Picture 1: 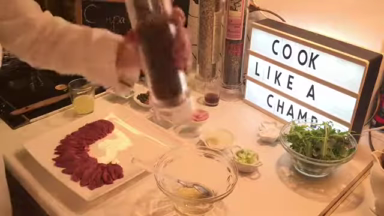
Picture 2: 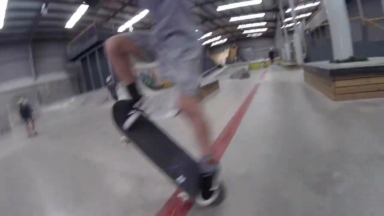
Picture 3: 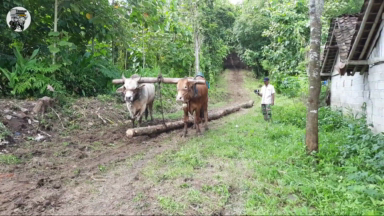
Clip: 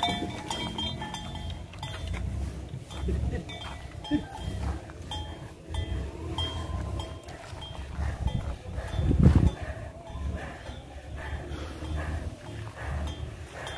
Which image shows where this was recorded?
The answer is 3